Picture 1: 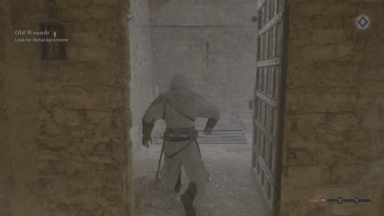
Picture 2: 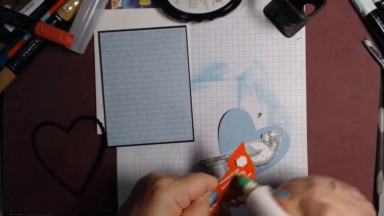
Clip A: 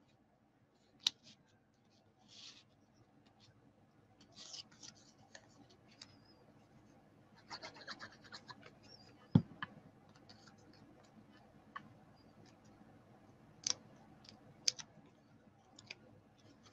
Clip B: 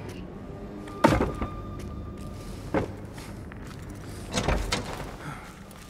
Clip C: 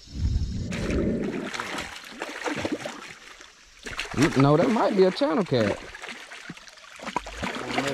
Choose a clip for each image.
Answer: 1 B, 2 A